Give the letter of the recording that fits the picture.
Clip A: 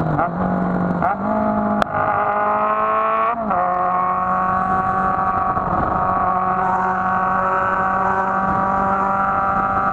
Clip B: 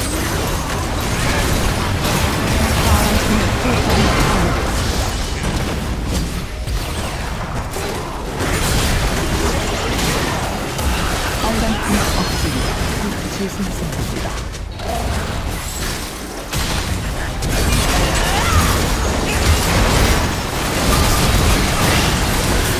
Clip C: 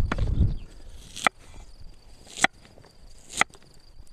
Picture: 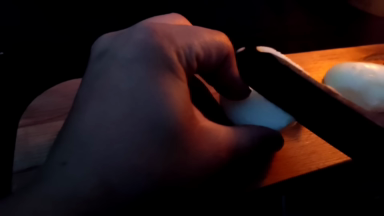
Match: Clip C